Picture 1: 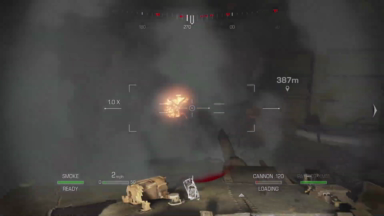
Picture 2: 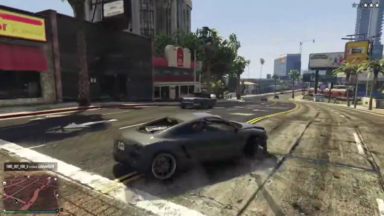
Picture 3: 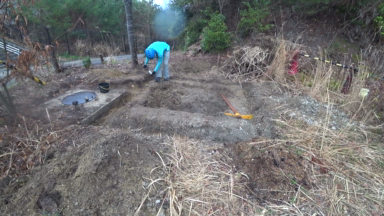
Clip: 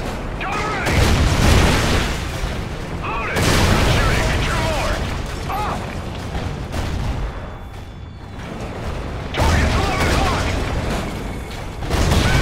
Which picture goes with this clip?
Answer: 1